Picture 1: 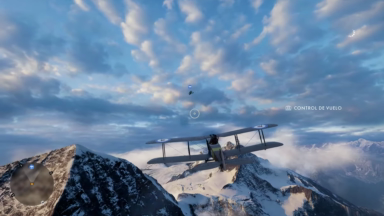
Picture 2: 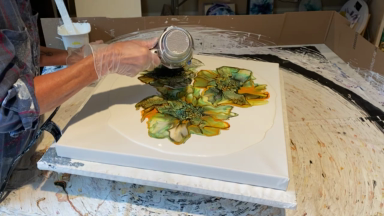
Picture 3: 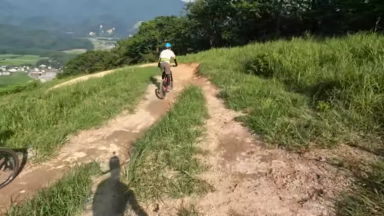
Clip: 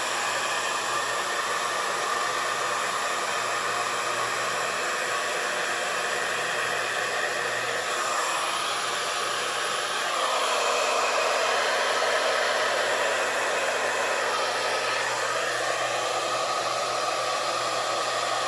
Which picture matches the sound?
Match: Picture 2